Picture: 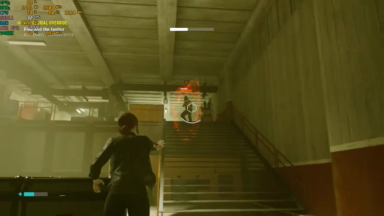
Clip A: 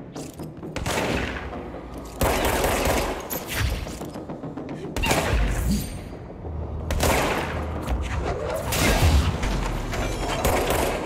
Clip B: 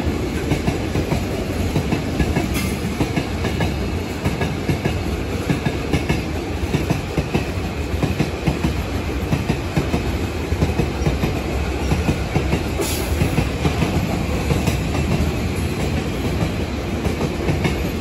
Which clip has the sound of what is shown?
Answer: A